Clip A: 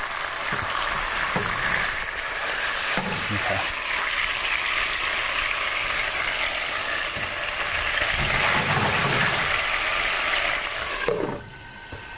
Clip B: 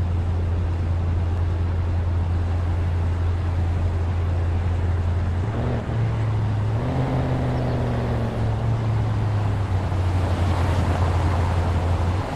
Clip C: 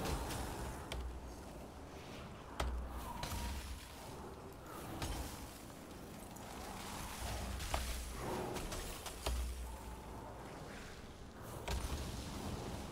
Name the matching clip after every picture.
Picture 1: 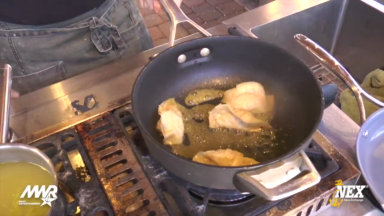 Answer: A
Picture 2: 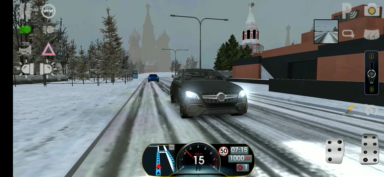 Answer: B